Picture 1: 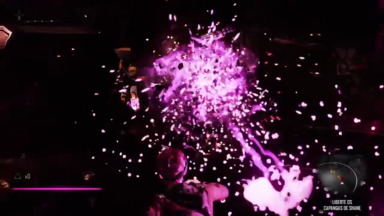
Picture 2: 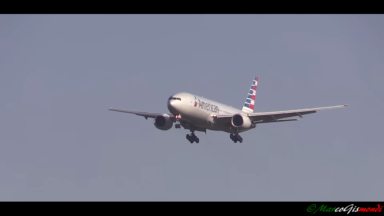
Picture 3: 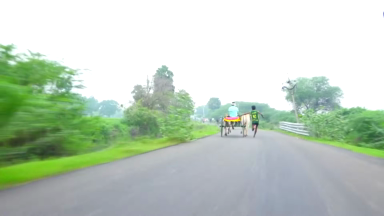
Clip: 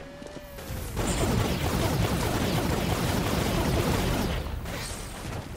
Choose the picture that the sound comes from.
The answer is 1